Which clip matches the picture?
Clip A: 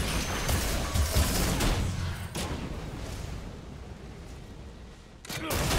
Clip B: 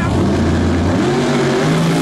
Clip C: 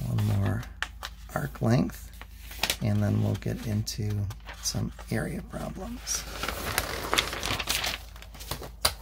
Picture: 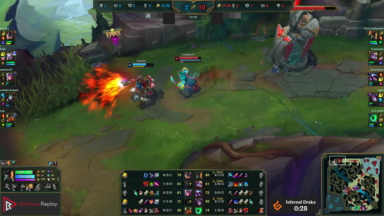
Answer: A